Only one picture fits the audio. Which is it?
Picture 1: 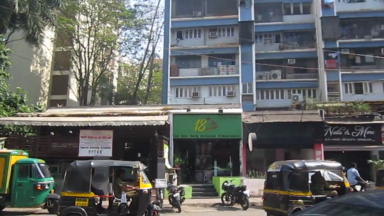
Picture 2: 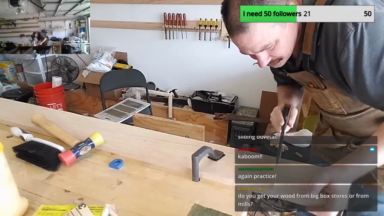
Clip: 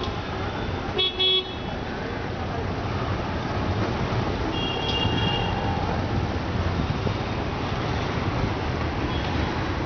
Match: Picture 1